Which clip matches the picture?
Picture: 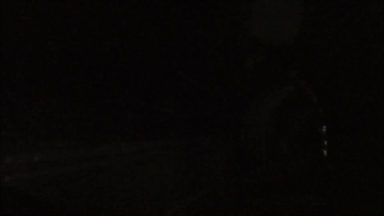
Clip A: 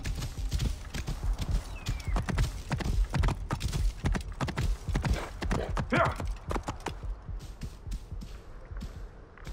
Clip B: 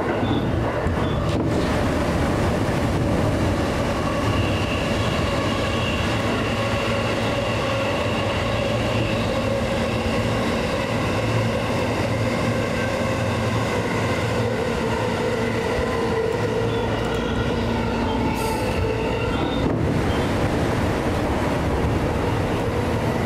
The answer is B